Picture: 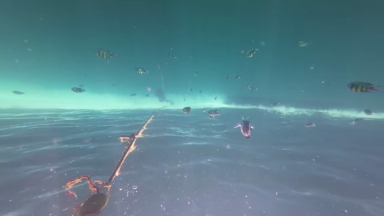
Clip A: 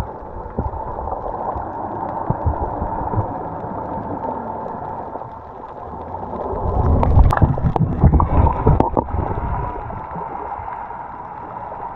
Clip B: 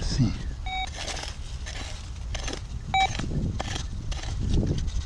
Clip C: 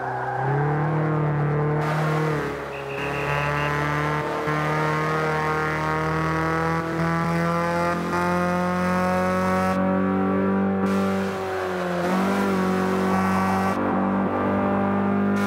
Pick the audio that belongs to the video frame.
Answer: A